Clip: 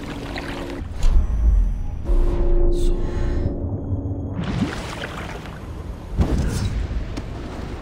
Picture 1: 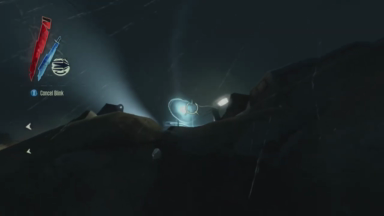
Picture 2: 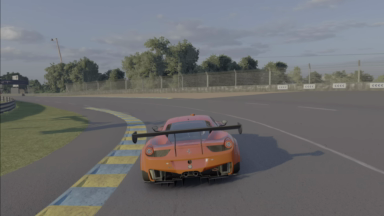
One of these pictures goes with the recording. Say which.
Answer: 1